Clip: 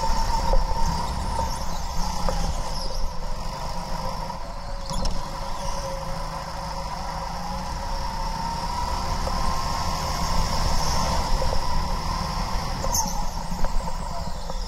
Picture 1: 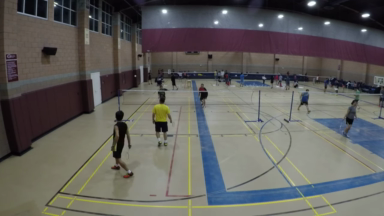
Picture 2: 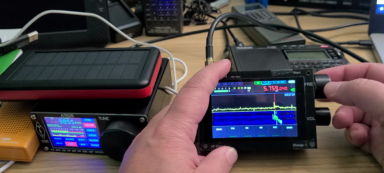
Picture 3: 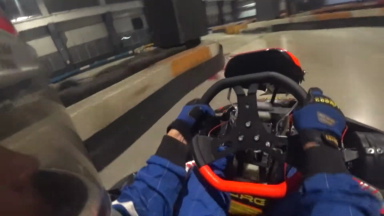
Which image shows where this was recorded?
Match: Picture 3